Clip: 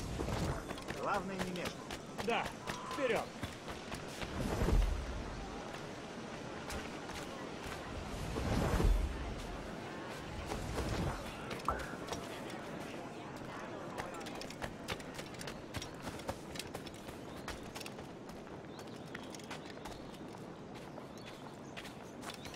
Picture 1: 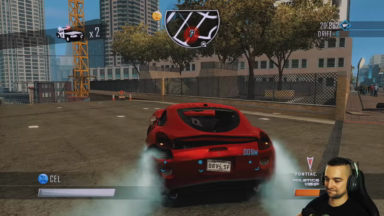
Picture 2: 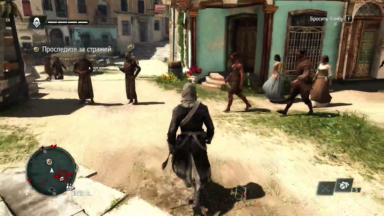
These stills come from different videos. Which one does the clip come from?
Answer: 2